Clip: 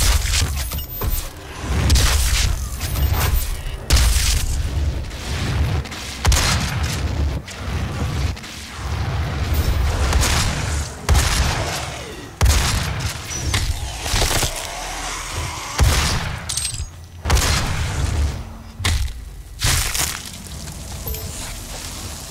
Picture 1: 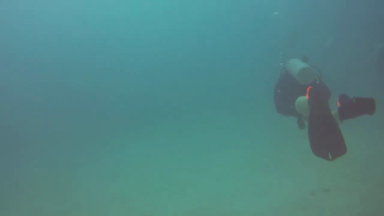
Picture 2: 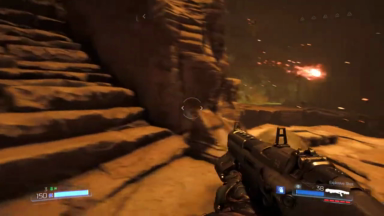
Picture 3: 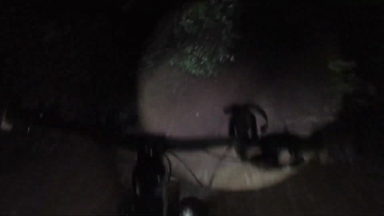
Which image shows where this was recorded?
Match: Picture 2